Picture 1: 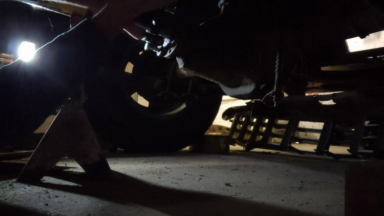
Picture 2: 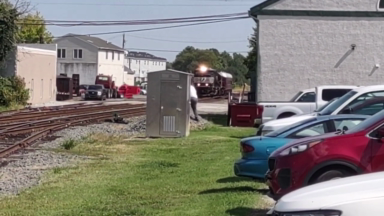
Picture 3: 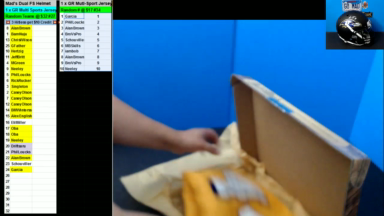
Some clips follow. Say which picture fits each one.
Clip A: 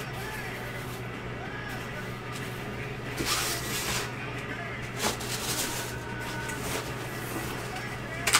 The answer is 3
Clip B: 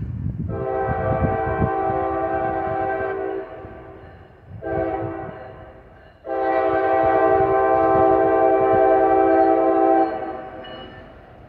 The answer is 2